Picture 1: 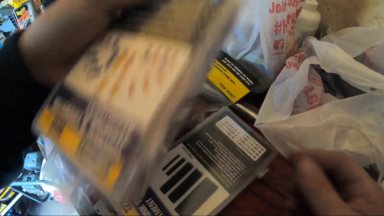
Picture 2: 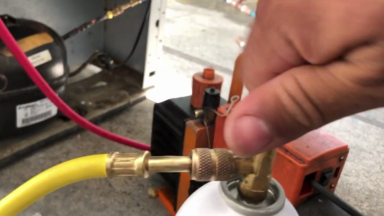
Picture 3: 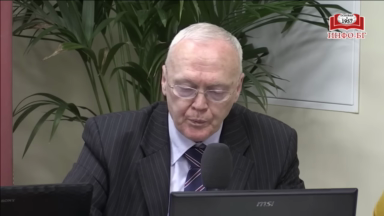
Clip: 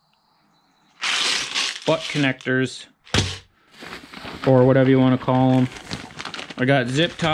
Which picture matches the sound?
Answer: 1